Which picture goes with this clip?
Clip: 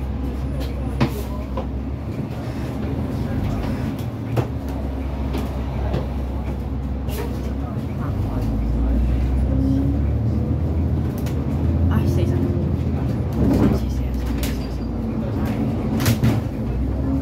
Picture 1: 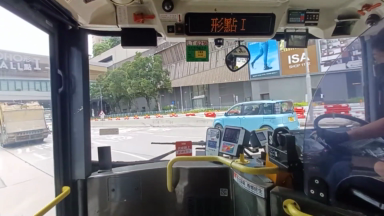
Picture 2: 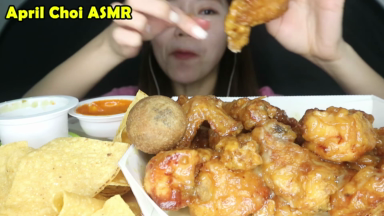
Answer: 1